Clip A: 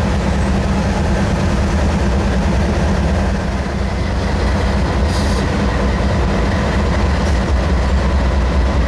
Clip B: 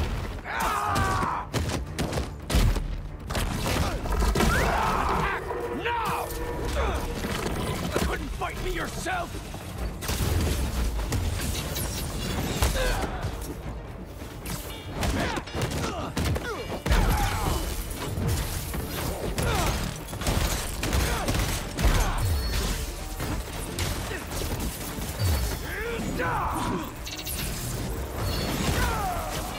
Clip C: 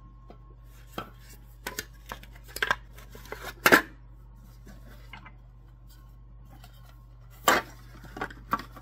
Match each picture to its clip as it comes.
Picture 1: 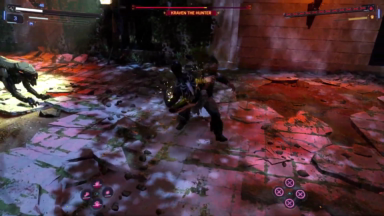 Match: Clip B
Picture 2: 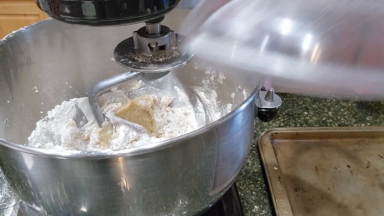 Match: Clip C